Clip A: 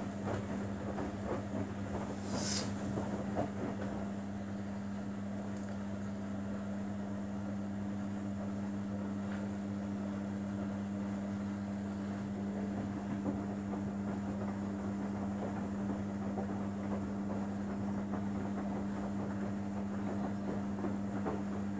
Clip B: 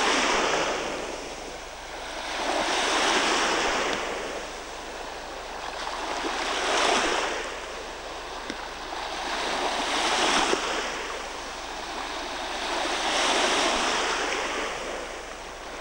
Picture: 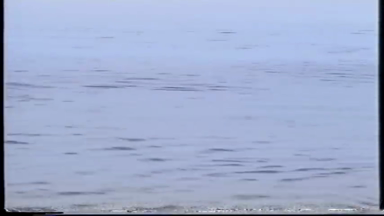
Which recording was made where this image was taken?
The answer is B